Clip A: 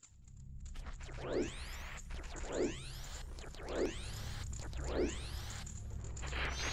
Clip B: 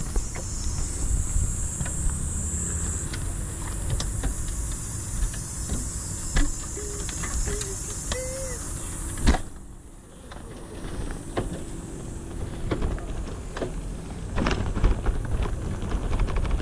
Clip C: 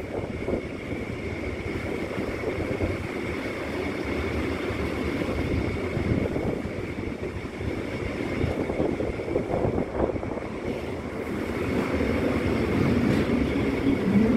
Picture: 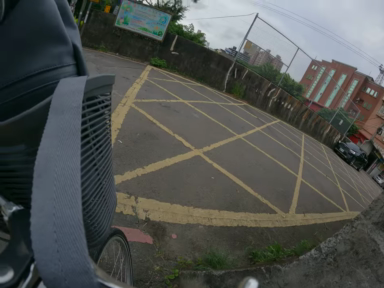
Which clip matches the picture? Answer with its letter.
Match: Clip B